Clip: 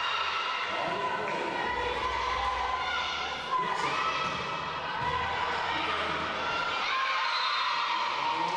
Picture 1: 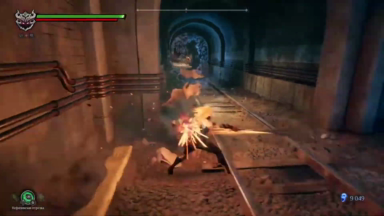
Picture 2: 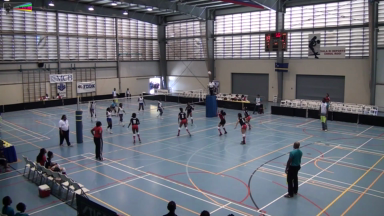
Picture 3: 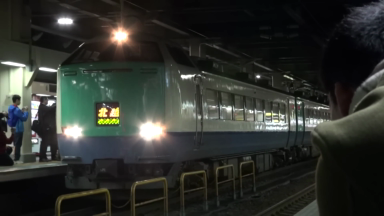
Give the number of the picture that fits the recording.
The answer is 2